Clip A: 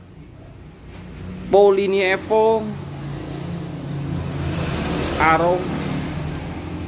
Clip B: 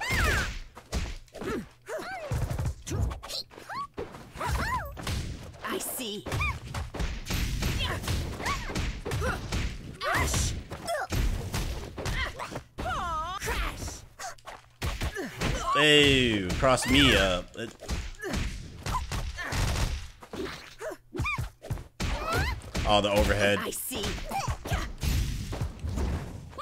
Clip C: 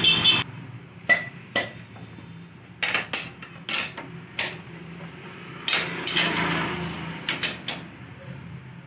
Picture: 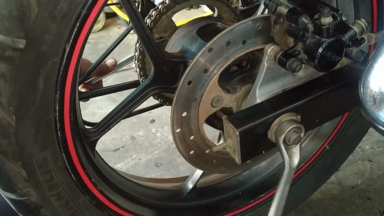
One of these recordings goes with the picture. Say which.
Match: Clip C